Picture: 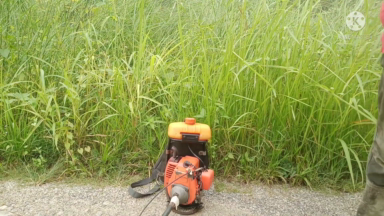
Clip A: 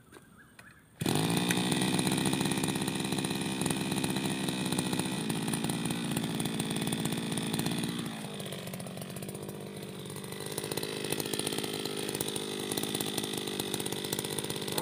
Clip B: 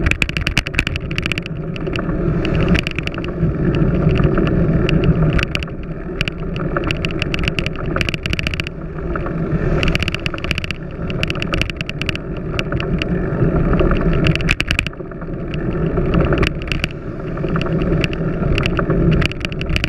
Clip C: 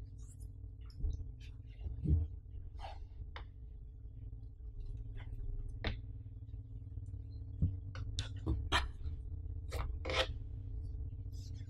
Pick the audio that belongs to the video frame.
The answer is A